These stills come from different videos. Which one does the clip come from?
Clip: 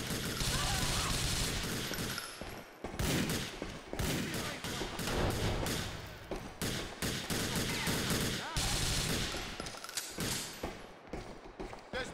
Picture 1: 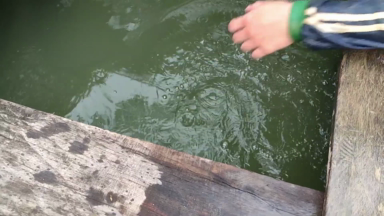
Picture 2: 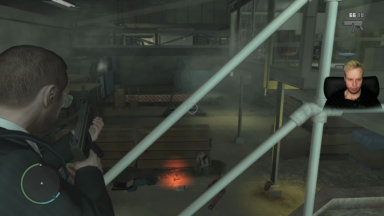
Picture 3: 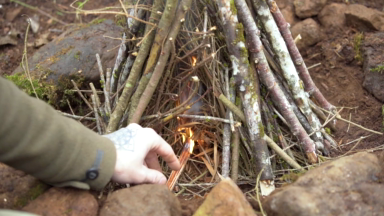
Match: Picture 2